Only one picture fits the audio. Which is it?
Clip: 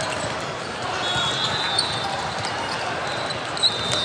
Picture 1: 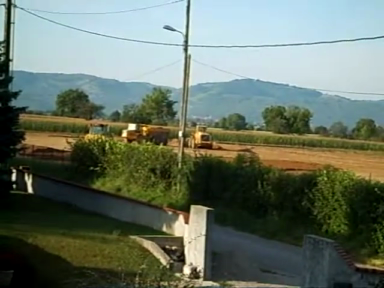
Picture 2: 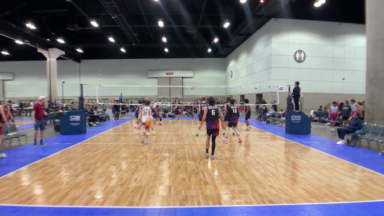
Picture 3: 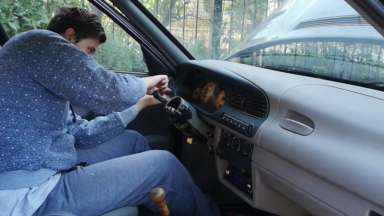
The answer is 2